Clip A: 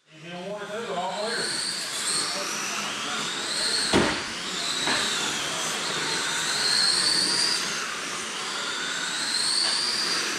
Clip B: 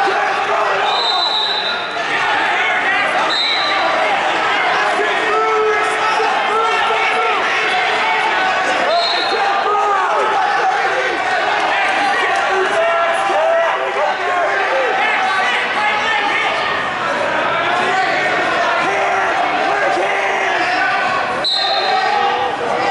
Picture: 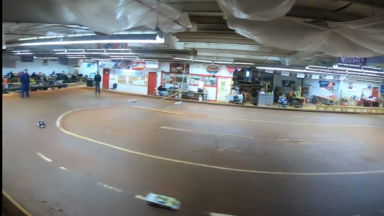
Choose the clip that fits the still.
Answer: A